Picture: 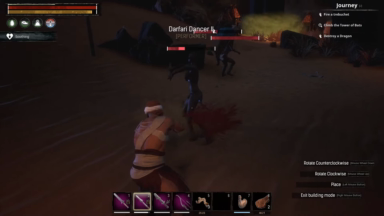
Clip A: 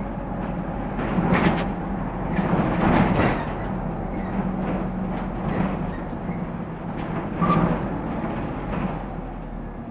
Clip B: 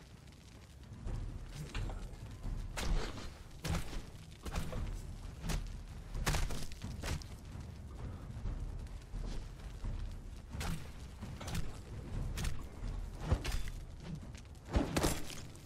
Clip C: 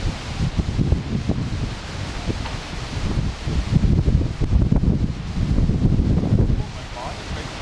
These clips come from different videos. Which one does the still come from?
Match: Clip B